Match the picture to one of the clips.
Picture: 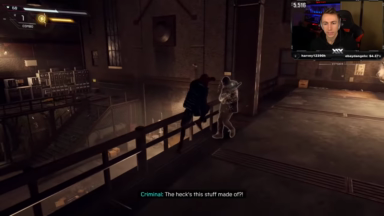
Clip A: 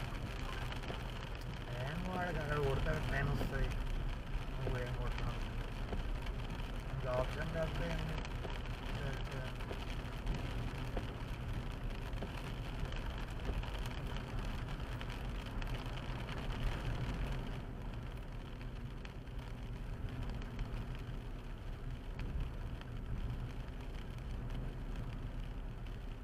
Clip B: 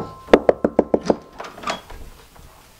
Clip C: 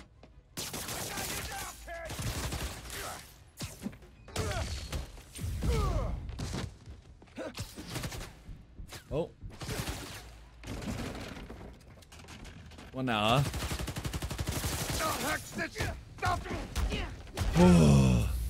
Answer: C